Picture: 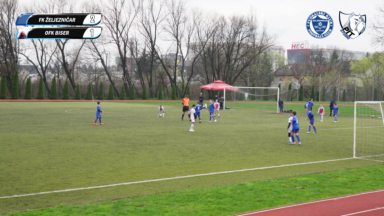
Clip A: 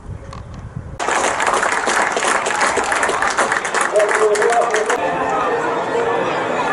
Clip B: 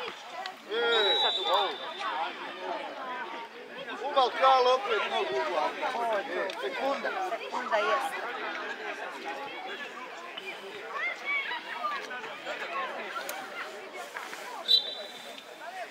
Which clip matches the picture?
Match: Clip B